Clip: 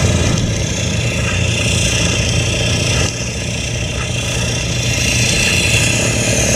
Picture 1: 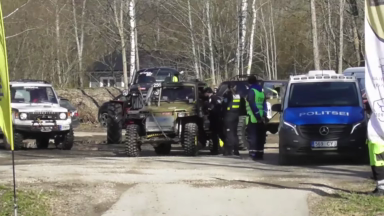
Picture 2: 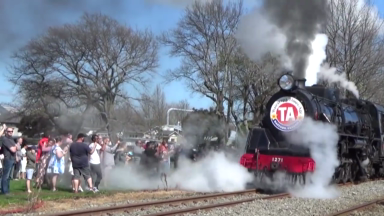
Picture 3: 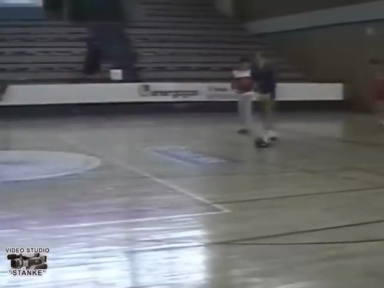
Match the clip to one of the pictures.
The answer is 1